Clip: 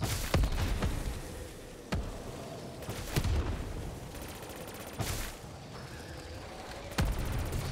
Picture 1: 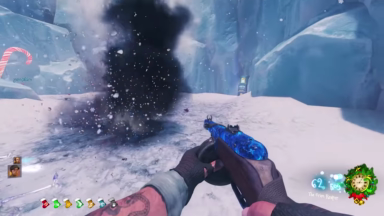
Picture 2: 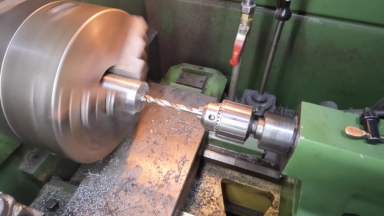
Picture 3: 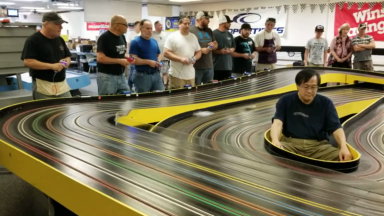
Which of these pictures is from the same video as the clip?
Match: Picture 1